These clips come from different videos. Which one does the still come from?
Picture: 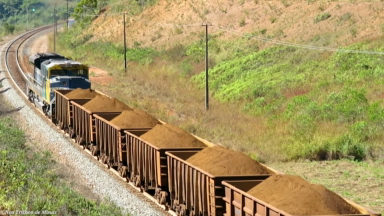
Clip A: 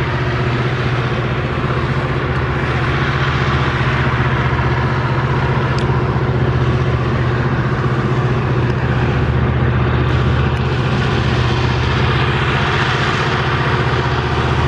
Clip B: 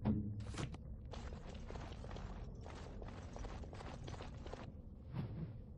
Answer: A